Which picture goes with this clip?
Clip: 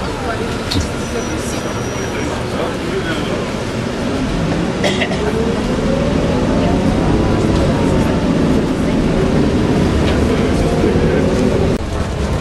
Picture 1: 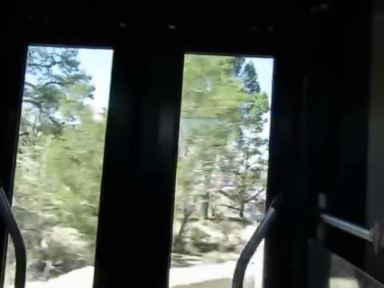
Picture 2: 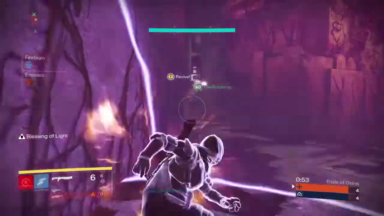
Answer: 1